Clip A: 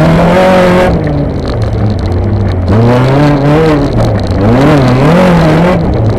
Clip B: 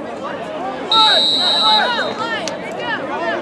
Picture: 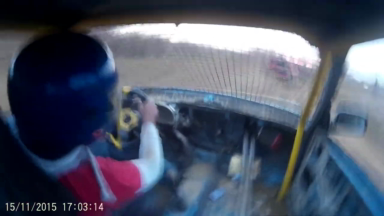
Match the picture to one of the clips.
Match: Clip A